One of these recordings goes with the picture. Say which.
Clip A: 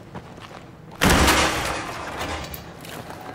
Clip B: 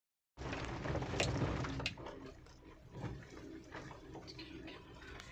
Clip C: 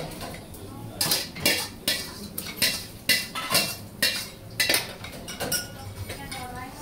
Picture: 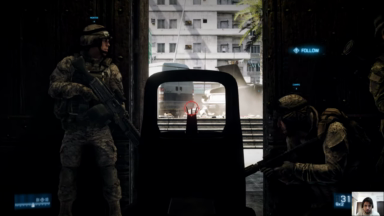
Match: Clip A